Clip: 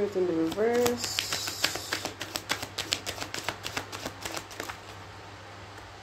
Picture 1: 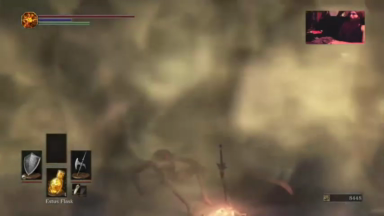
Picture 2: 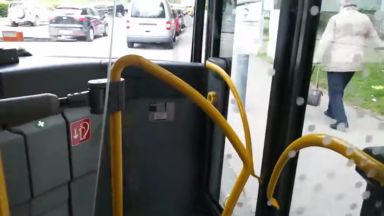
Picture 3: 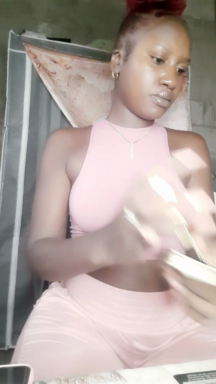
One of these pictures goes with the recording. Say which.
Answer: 3